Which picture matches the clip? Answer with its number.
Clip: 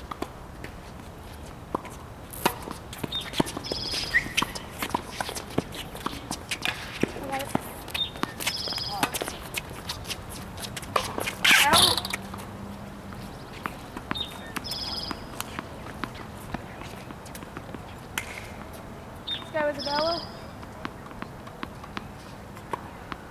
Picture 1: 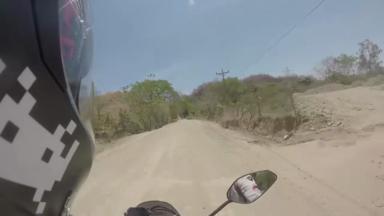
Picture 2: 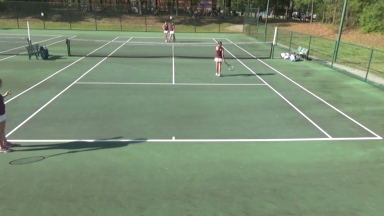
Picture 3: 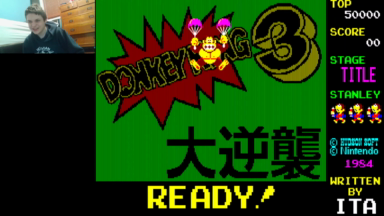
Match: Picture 2